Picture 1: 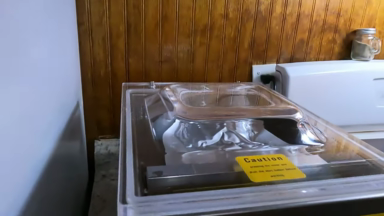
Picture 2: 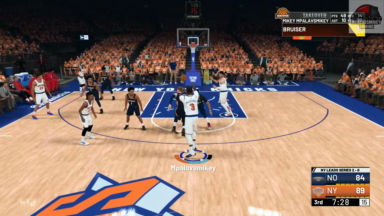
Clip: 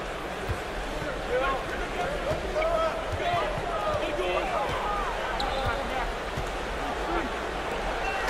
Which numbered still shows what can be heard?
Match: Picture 2